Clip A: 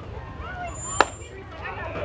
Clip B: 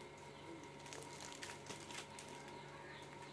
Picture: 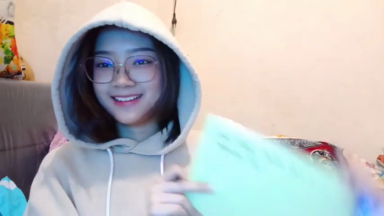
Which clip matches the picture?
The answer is B